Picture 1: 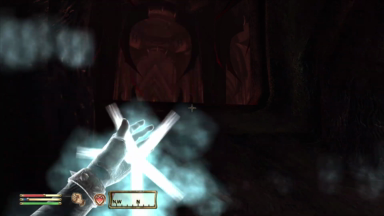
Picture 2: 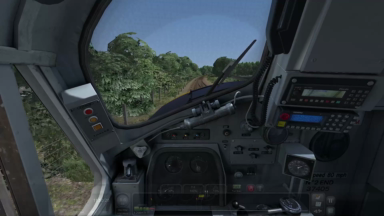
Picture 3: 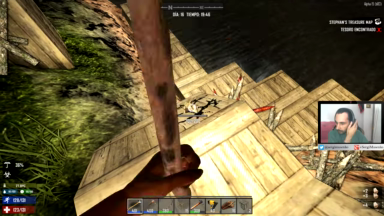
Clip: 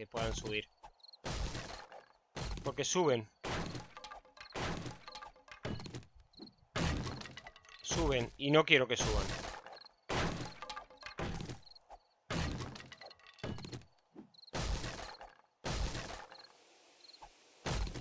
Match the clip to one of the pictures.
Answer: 3